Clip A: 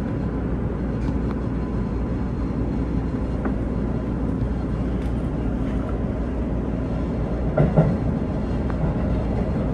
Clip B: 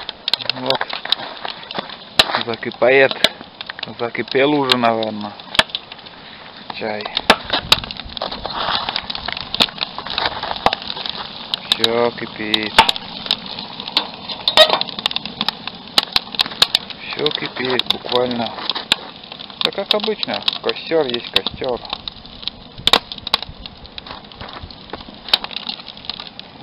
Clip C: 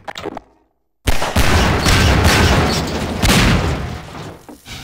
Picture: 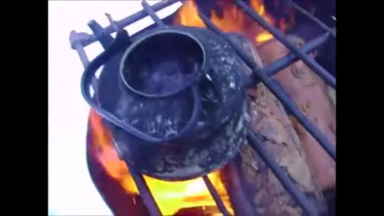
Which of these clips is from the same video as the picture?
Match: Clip B